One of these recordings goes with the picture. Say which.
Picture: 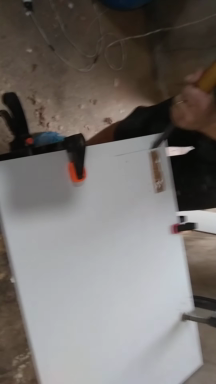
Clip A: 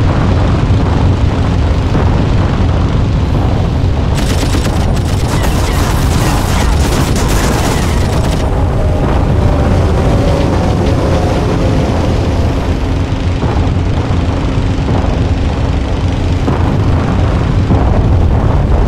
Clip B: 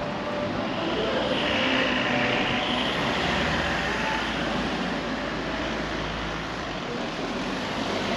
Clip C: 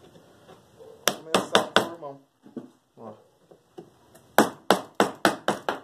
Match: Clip C